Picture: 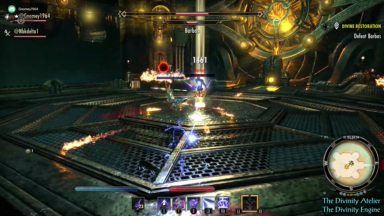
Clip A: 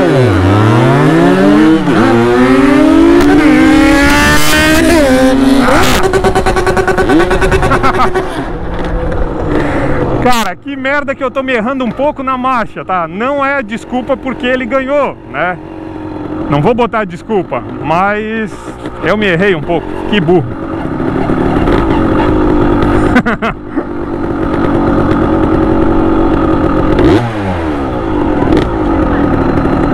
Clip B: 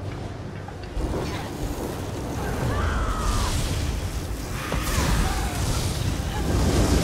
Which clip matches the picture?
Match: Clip B